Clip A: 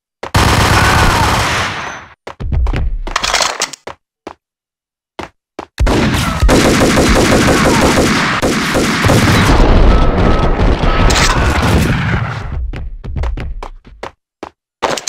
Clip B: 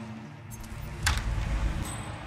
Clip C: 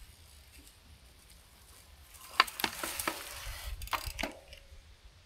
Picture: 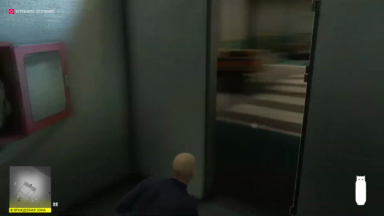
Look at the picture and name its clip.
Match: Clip B